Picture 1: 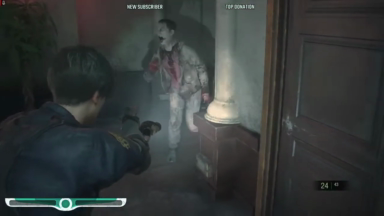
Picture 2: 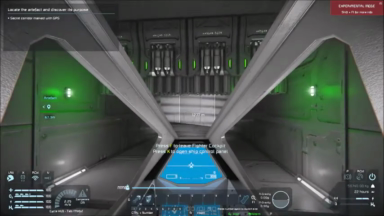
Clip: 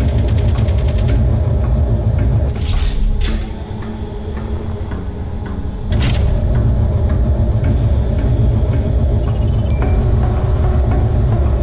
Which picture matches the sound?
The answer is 2